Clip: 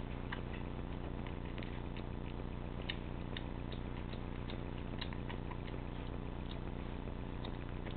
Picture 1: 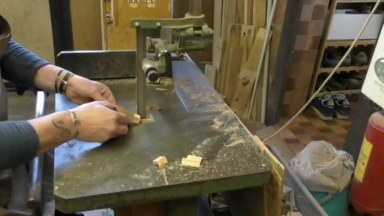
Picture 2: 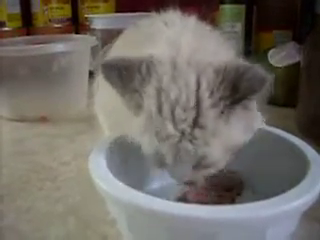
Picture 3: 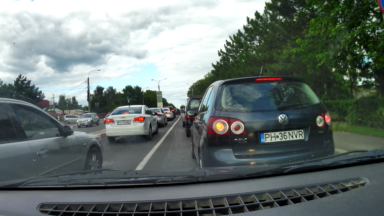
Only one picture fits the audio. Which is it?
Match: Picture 2